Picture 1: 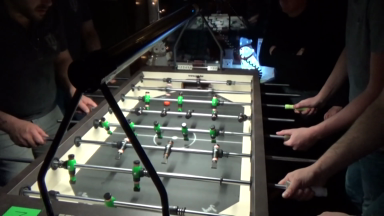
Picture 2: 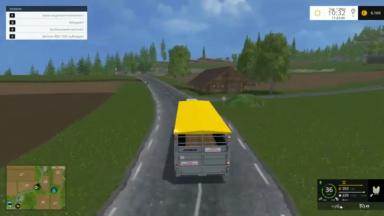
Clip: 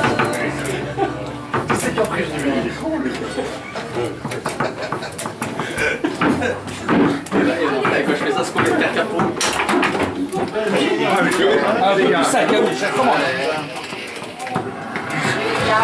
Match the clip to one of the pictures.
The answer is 1